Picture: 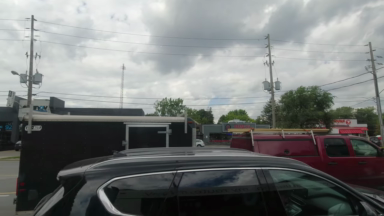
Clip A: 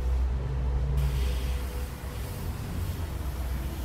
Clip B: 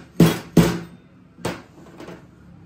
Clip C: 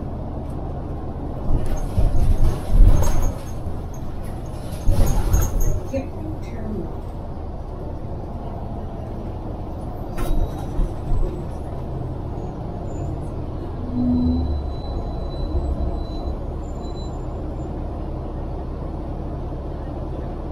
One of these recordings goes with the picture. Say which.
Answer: C